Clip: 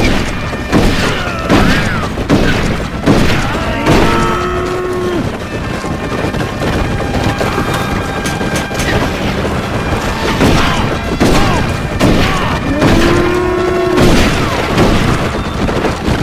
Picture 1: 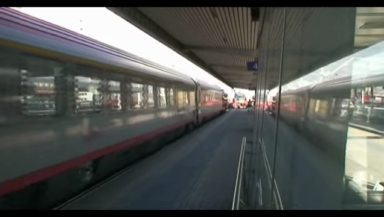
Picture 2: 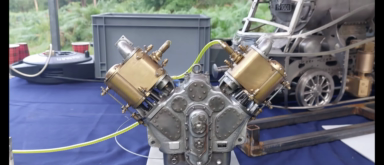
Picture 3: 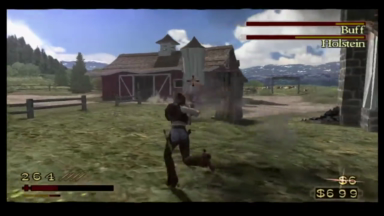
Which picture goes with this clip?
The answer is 3